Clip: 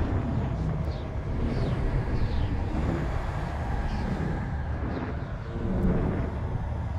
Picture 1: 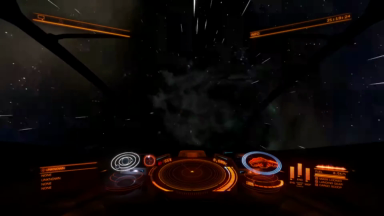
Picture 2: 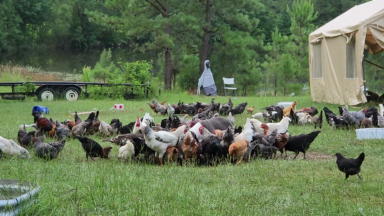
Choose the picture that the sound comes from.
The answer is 1